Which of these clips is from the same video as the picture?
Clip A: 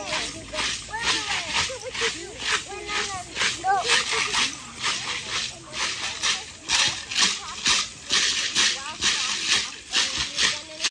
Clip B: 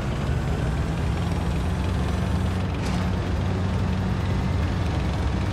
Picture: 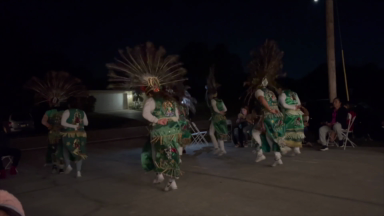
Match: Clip A